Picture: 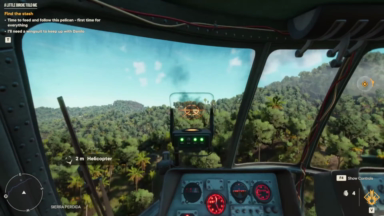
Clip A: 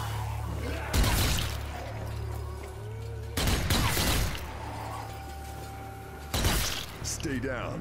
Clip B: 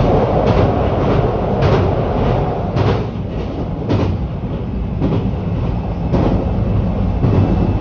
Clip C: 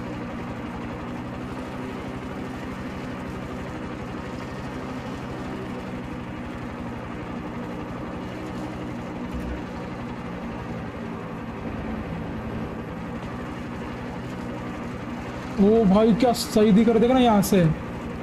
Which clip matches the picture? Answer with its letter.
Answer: C